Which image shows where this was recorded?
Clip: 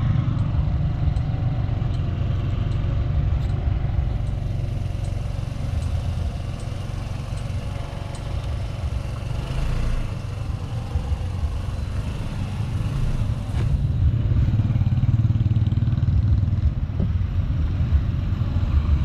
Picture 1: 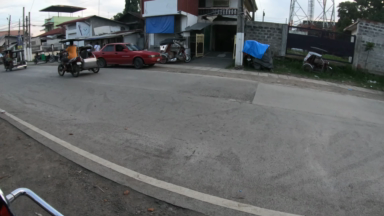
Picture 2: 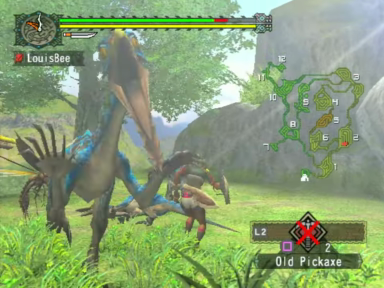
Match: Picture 1